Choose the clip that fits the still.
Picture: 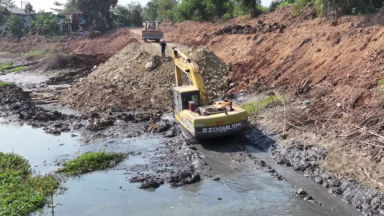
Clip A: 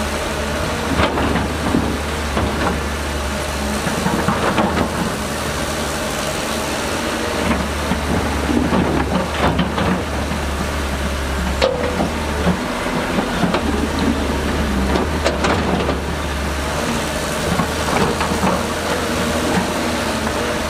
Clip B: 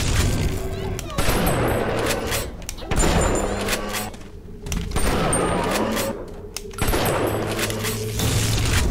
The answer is A